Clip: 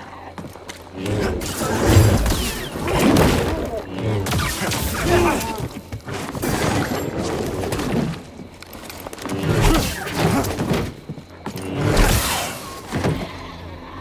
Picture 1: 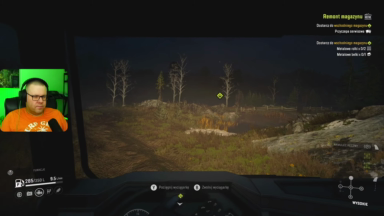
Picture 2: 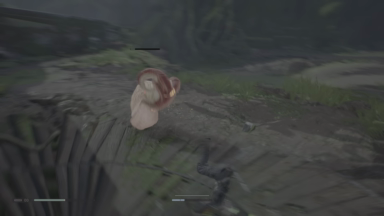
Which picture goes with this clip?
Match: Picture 2